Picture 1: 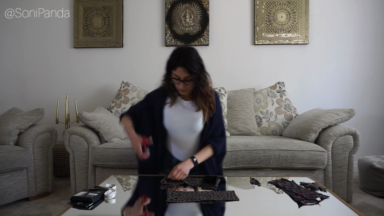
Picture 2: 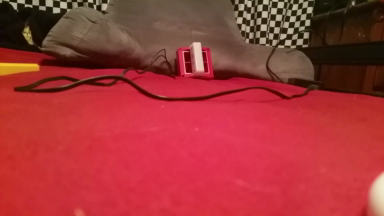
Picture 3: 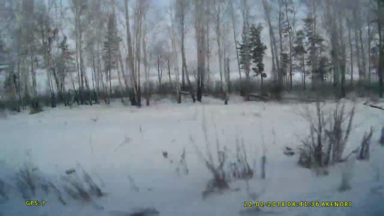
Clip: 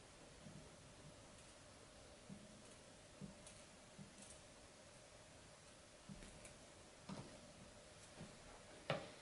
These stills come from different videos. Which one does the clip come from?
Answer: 1